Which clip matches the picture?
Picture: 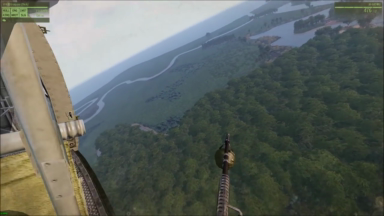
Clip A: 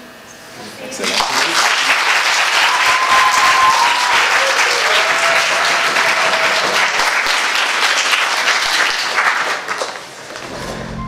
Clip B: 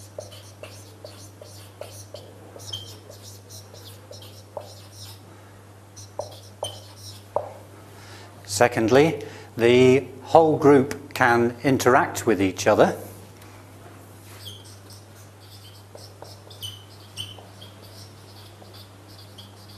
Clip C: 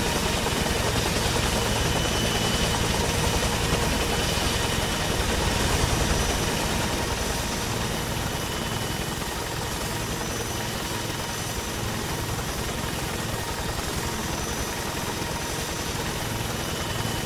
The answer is C